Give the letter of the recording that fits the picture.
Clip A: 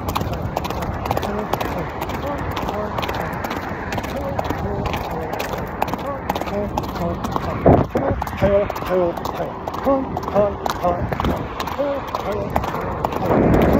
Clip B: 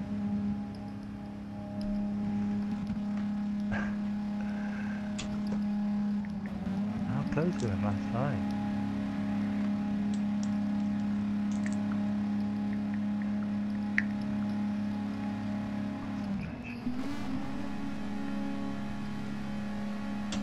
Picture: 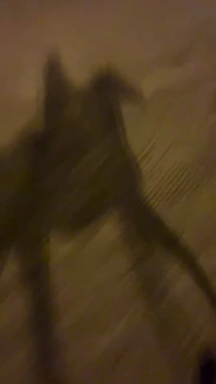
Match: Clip A